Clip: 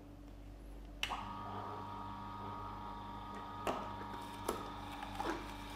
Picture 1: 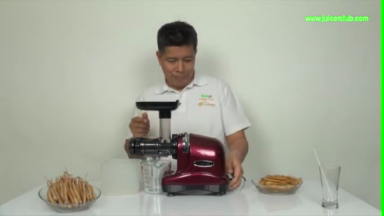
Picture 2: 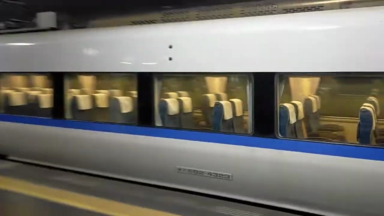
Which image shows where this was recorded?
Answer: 1